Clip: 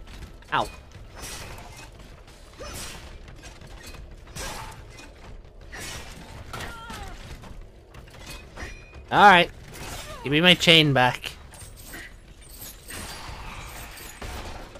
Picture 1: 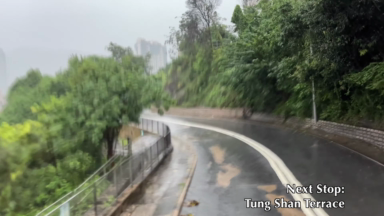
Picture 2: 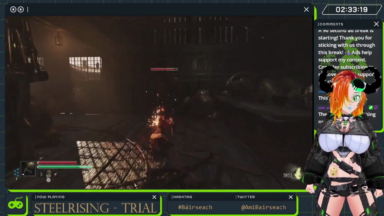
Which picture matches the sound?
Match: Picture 2